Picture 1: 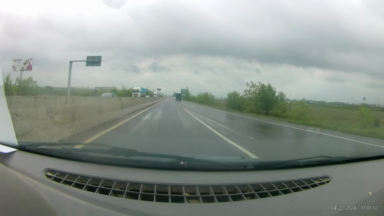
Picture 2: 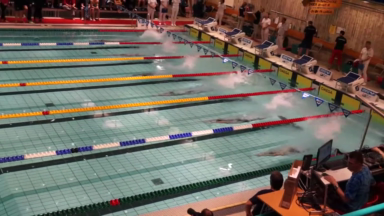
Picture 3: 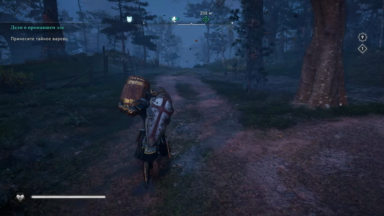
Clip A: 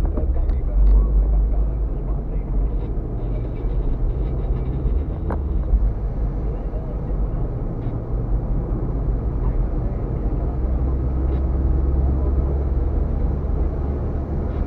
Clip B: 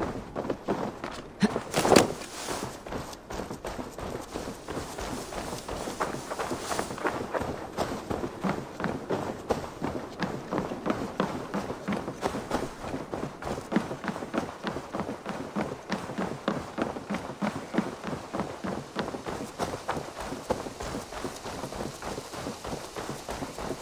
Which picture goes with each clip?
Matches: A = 1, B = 3